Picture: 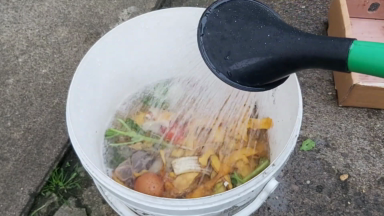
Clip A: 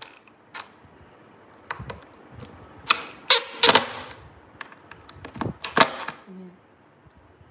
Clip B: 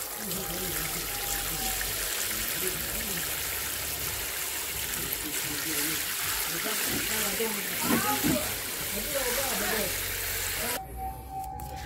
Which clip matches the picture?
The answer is B